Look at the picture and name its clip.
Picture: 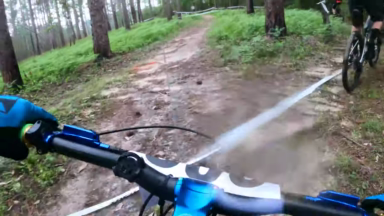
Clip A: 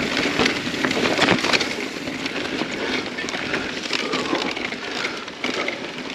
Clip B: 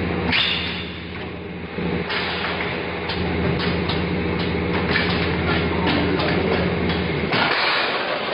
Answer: A